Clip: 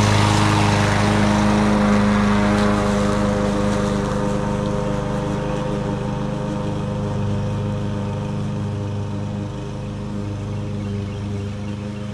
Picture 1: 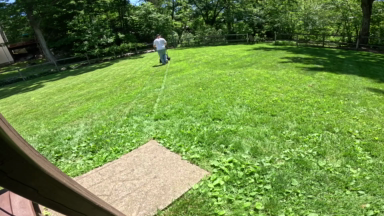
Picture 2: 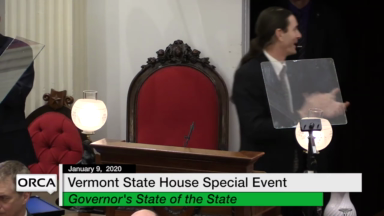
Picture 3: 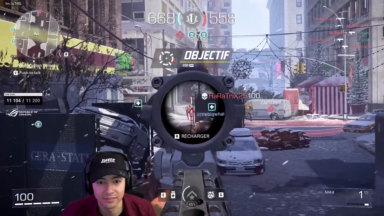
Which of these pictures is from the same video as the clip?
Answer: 1